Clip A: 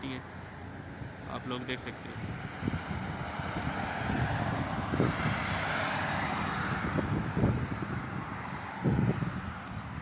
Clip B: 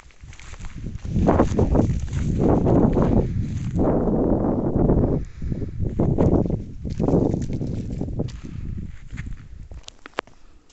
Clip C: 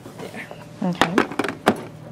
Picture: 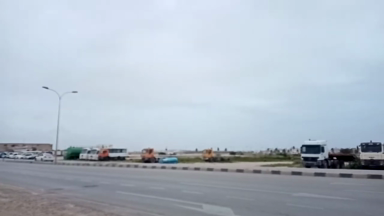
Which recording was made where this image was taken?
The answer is A